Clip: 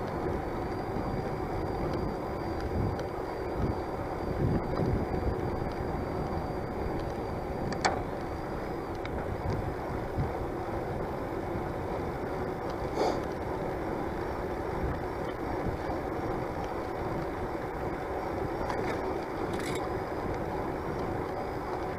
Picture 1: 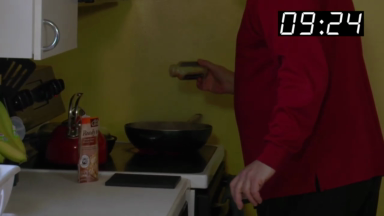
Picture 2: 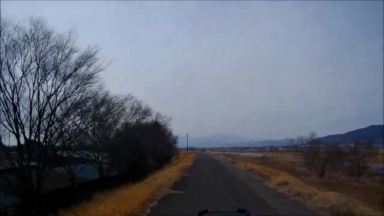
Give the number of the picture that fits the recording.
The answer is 2